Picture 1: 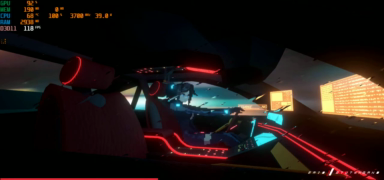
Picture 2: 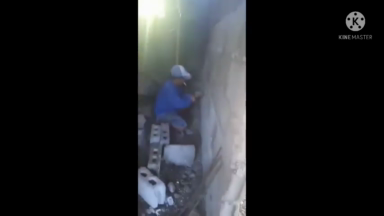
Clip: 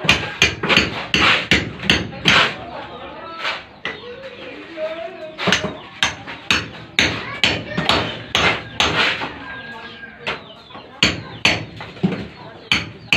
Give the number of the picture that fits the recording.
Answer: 2